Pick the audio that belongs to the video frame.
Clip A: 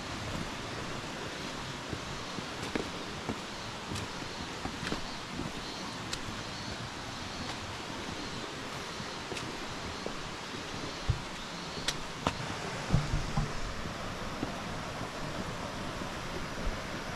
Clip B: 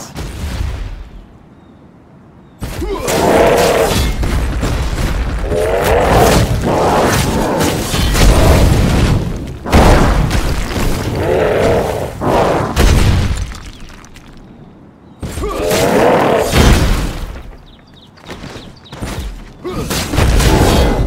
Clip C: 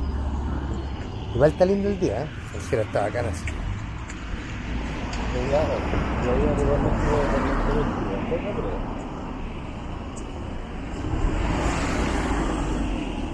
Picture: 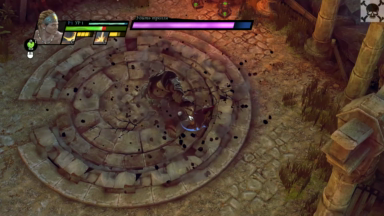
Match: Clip B